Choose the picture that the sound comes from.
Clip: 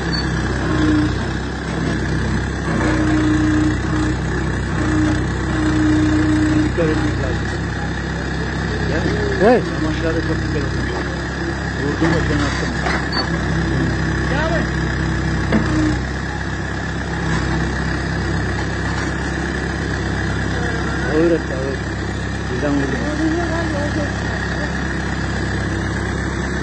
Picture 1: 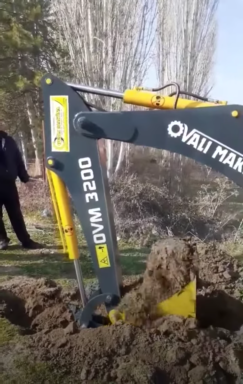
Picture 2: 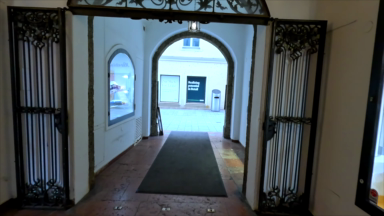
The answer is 1